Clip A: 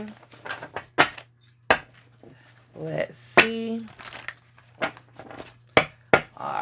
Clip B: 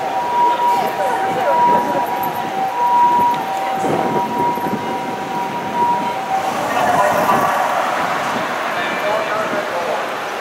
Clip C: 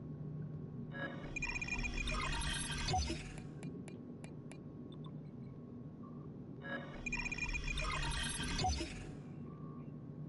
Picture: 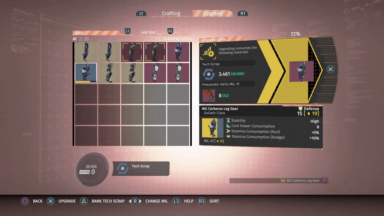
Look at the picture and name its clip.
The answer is C